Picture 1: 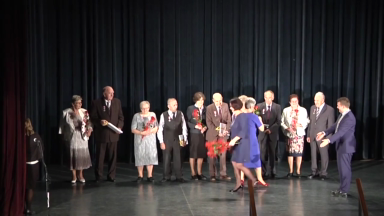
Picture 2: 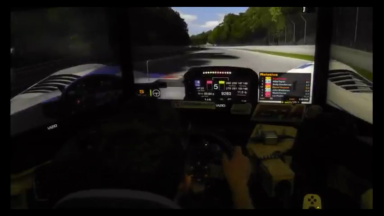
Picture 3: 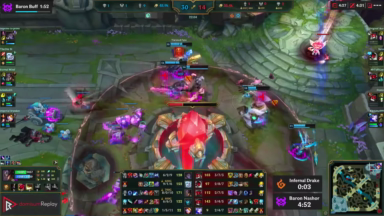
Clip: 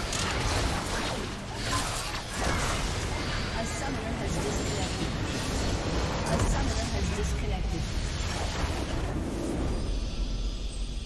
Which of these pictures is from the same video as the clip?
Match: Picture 3